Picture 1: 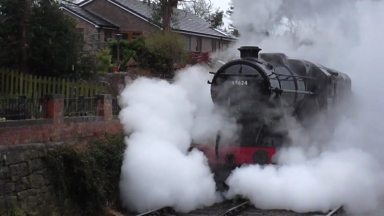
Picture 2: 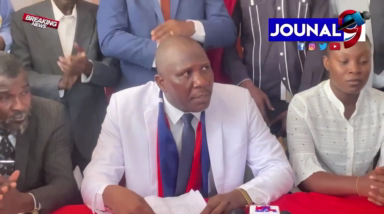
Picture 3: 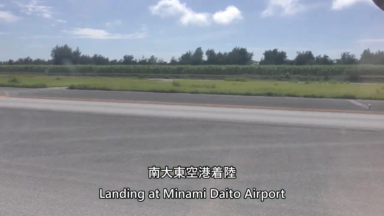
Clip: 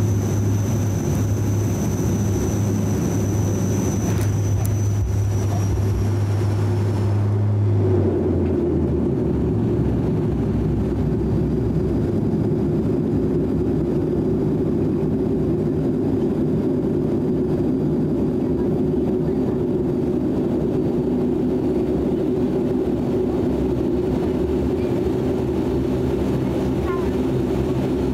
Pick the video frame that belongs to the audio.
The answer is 3